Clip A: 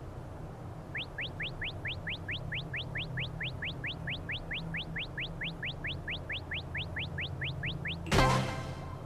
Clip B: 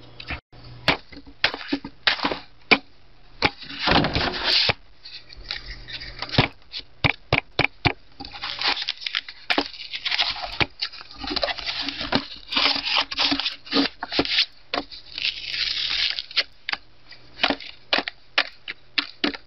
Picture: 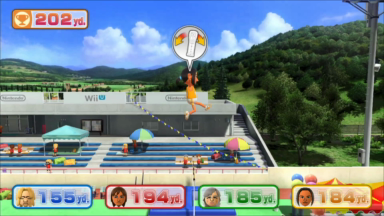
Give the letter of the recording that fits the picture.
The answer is A